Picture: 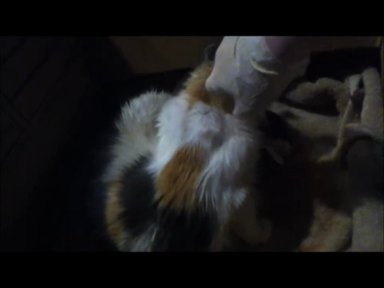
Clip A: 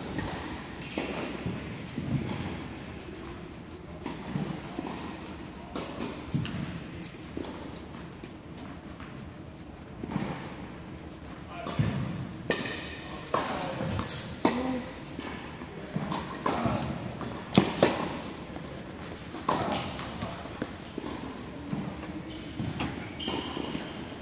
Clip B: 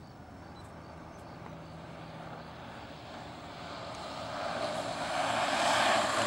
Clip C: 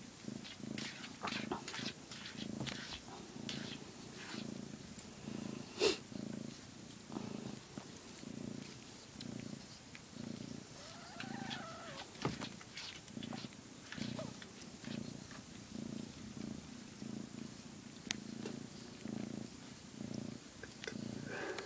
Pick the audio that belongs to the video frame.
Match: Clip C